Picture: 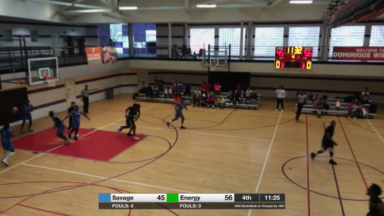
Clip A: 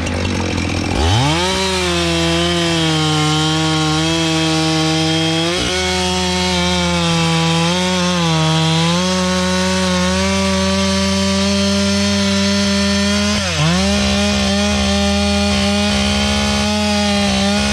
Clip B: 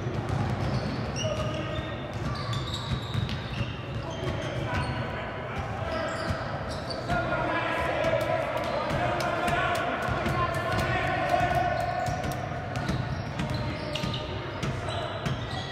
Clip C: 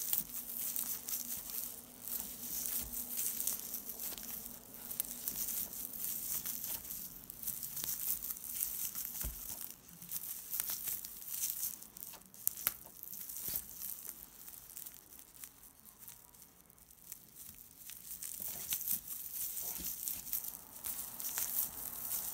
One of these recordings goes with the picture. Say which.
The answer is B